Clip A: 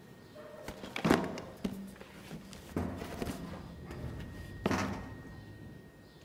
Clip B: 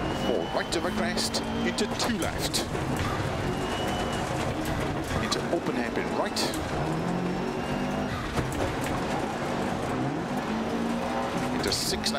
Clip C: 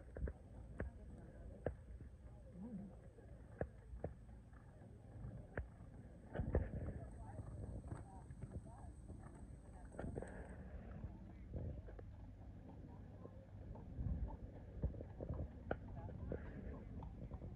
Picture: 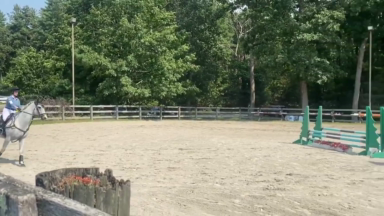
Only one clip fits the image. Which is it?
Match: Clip C